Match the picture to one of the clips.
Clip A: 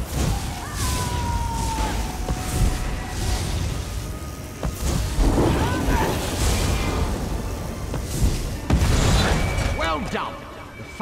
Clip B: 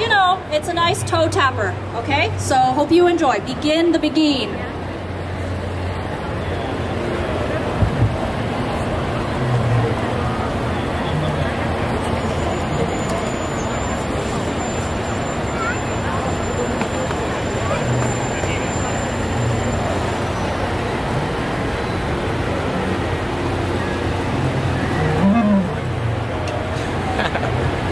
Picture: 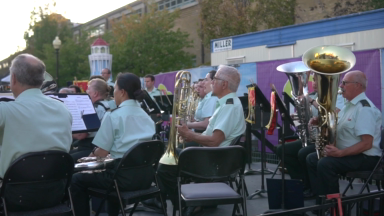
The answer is B